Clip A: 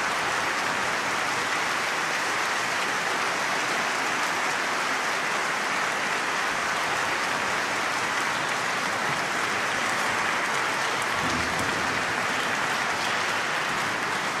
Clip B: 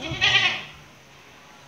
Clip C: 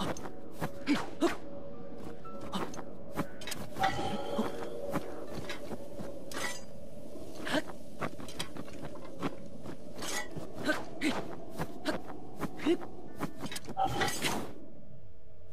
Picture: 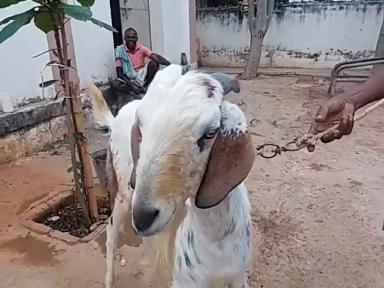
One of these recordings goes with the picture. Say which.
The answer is B